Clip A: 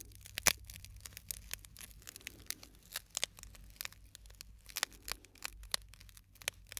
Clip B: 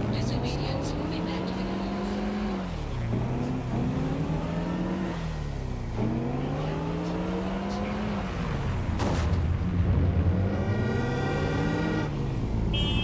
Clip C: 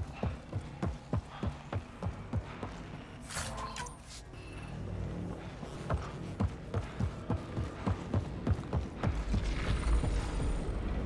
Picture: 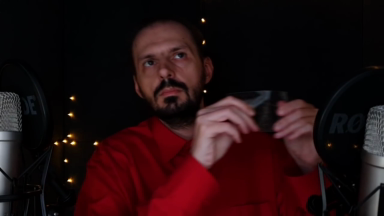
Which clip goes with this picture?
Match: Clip A